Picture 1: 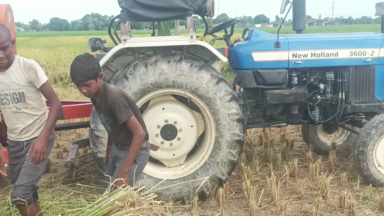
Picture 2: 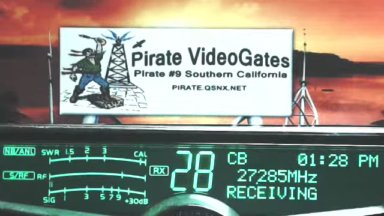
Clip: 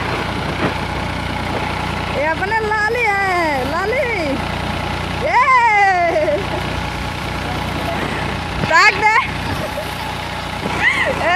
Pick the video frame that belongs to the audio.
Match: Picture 1